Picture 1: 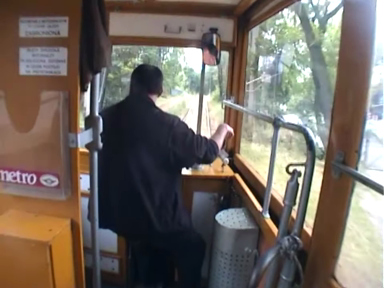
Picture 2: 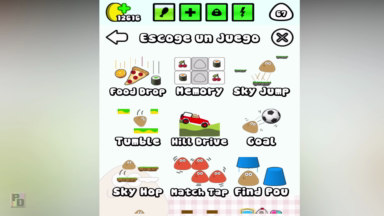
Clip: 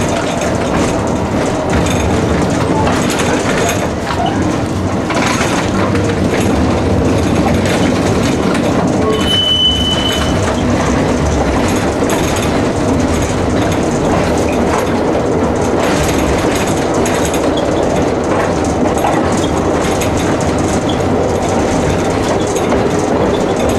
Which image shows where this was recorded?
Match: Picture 1